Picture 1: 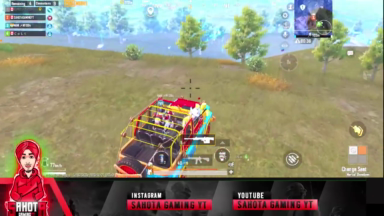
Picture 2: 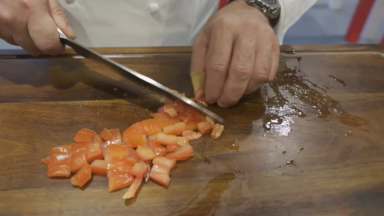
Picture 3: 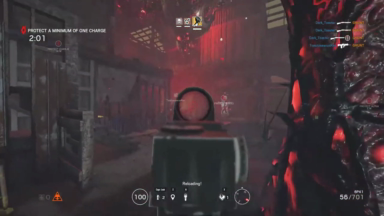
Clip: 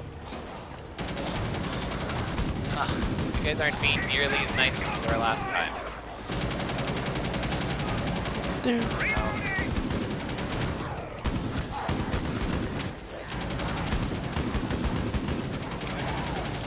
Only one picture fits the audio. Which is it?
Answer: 3